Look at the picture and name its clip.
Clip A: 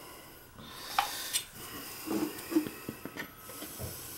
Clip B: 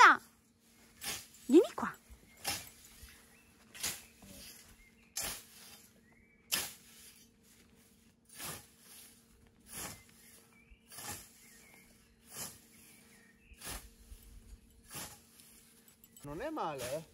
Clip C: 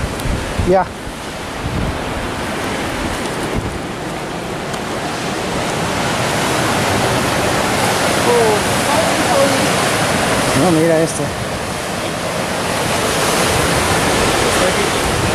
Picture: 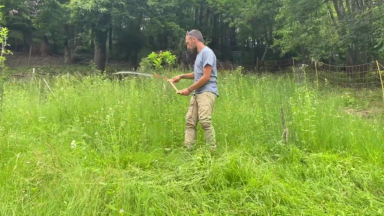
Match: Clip B